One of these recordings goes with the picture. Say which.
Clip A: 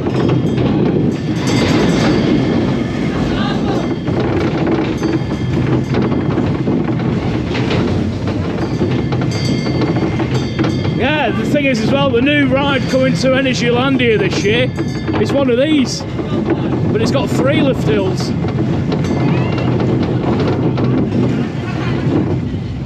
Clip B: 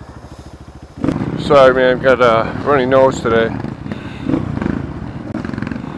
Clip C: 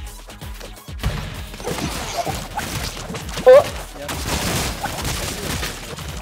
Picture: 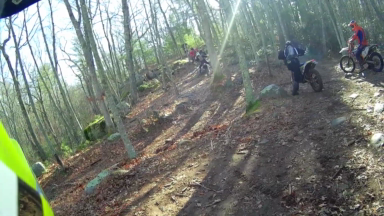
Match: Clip B